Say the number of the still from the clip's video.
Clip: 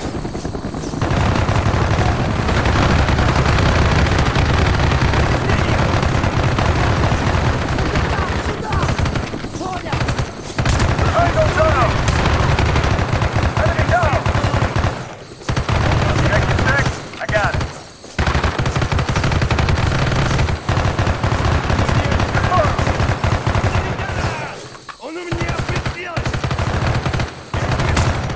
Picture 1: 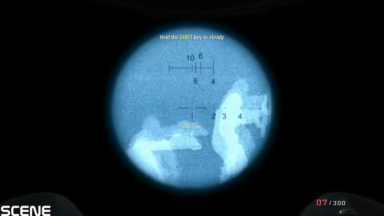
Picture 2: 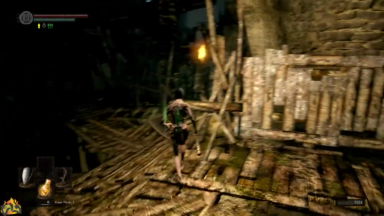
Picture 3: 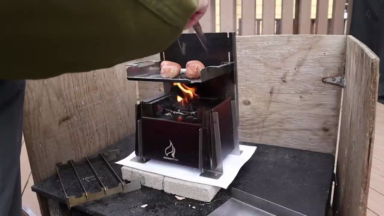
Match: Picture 1